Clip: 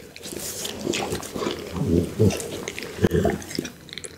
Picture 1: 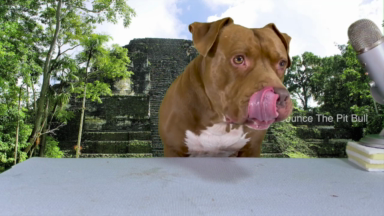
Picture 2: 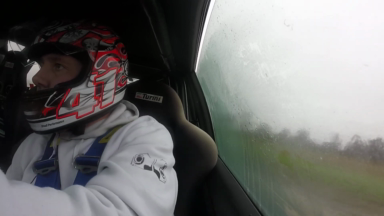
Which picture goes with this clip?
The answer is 1